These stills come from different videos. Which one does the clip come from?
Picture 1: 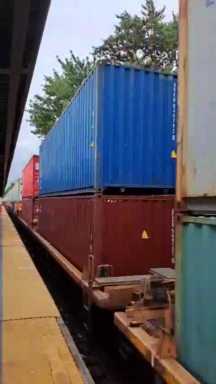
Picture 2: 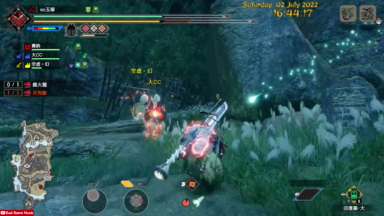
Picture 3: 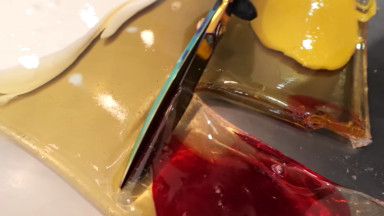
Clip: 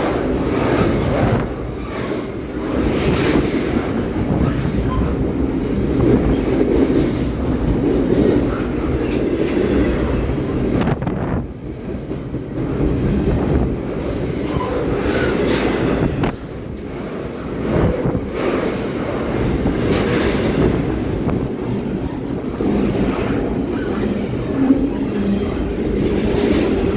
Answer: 1